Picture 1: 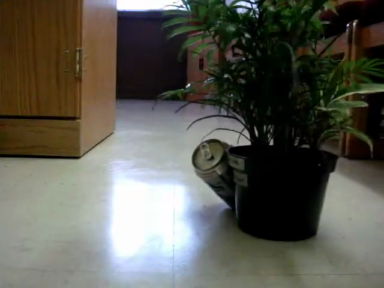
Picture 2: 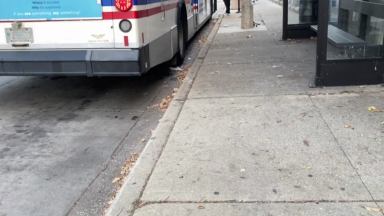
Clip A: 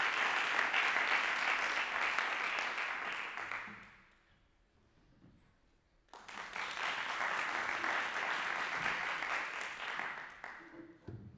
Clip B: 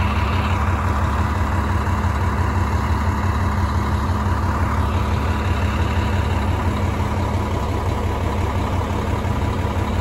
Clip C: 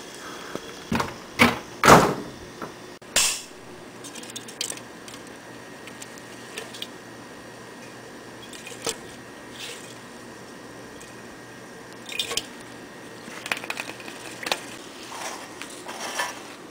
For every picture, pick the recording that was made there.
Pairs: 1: C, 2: B